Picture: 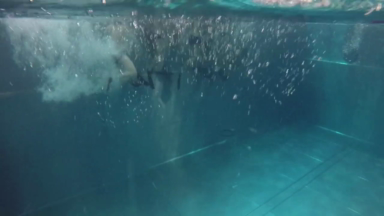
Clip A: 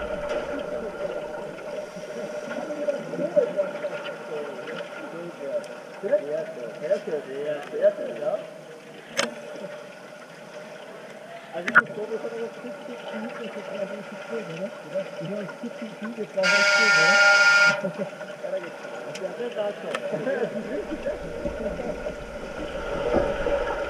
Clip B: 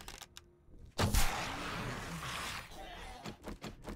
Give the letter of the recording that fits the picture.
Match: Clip A